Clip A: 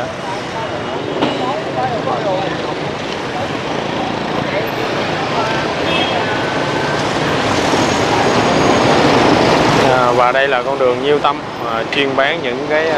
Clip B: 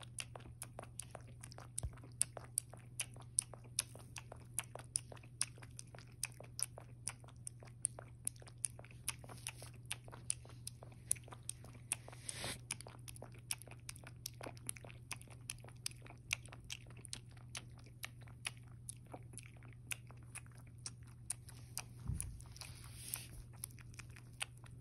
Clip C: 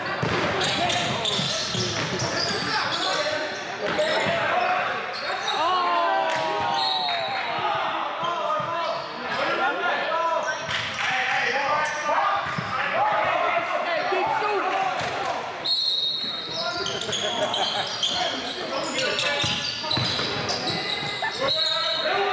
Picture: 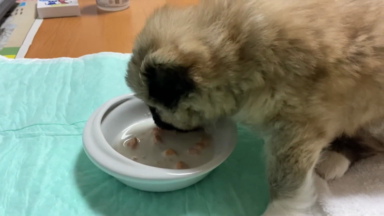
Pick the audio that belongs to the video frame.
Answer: B